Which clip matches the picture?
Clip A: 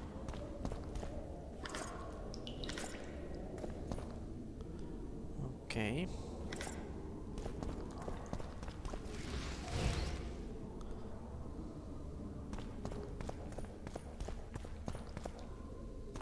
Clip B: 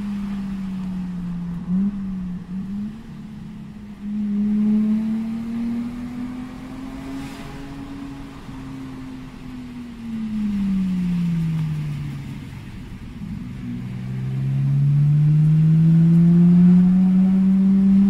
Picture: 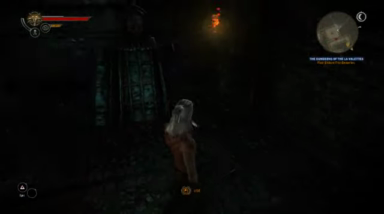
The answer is A